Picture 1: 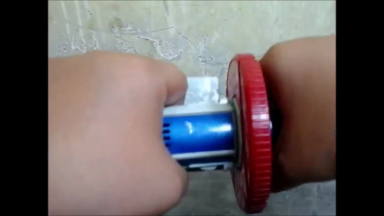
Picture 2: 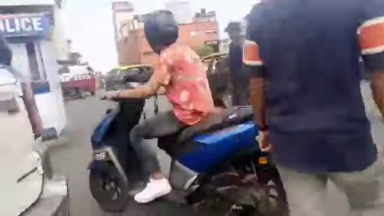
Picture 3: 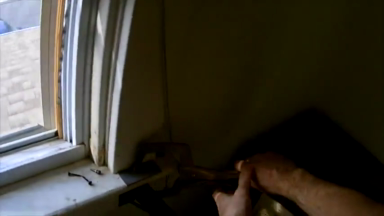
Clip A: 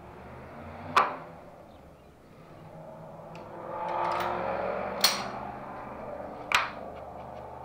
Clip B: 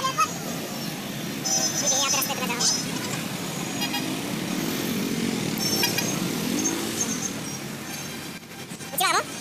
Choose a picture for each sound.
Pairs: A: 3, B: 2